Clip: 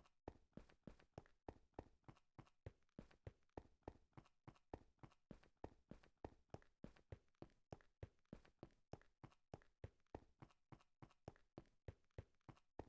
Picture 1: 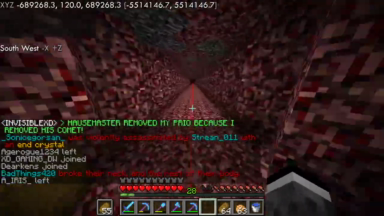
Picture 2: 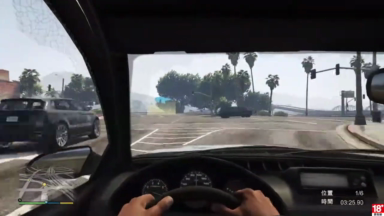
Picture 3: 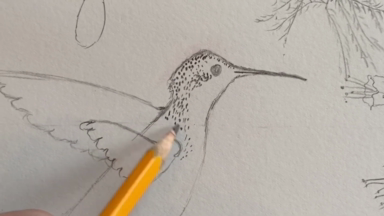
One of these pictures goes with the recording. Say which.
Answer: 1